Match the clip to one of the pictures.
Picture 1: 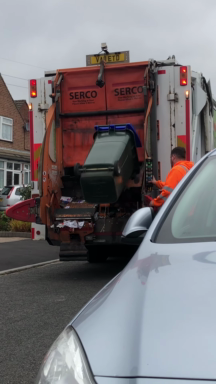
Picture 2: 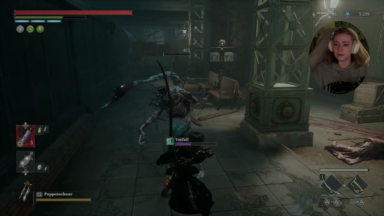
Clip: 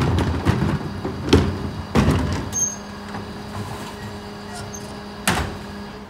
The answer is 1